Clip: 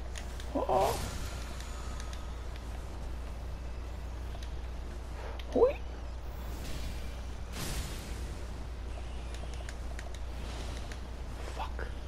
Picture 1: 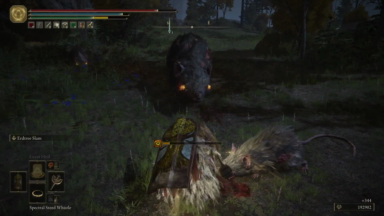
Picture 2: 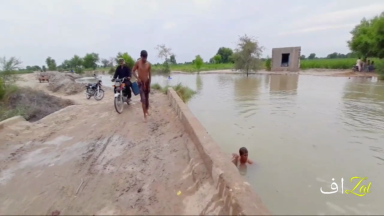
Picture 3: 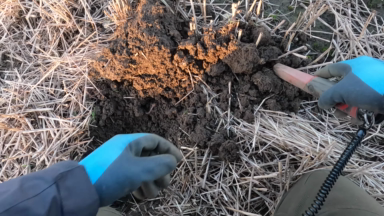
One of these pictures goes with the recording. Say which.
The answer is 1